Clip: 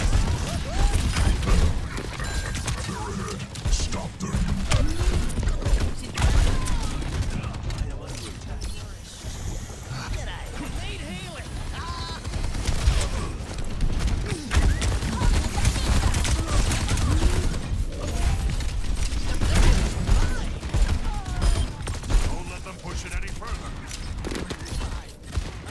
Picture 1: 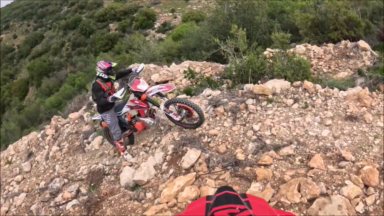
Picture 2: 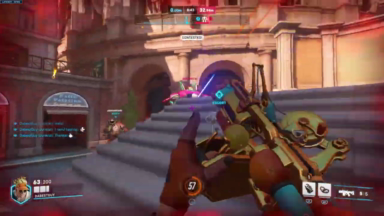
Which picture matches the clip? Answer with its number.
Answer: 2